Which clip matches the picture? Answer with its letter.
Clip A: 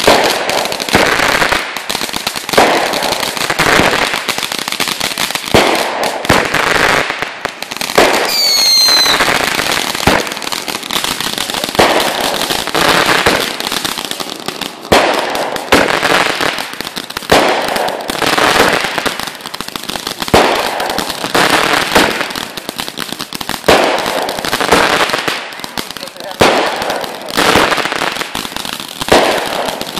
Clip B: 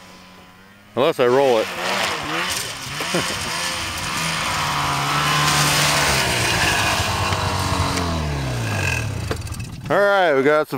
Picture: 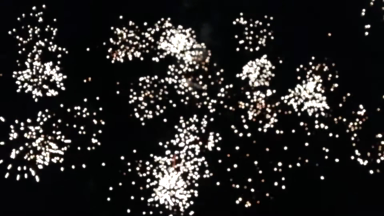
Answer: A